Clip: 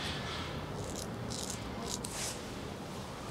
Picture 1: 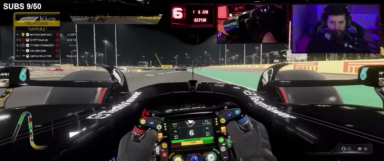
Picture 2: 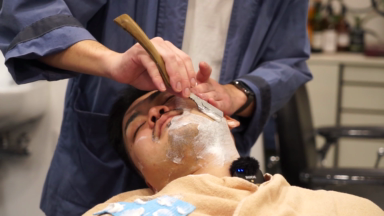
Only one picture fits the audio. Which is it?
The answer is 2